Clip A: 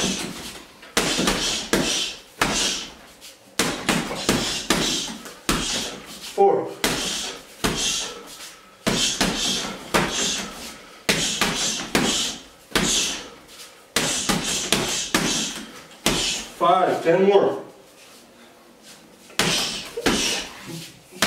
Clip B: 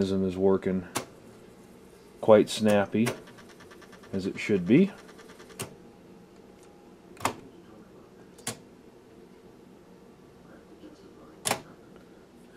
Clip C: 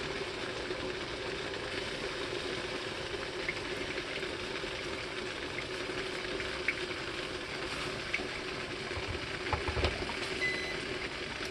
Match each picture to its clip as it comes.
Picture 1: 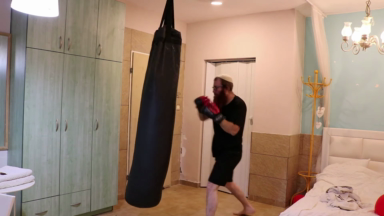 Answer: A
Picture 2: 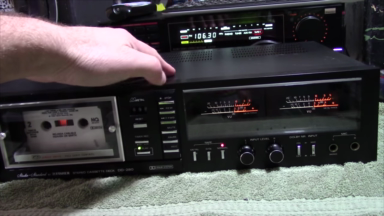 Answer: B